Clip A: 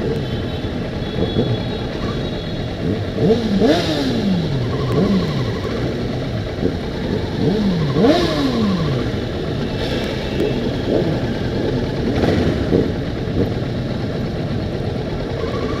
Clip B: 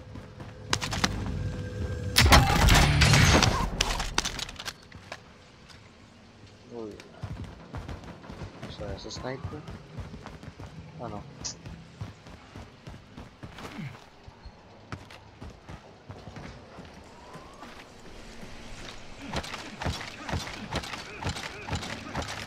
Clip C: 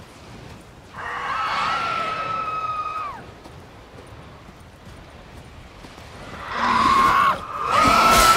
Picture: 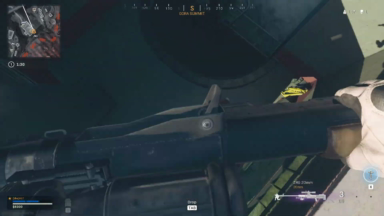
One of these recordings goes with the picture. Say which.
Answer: B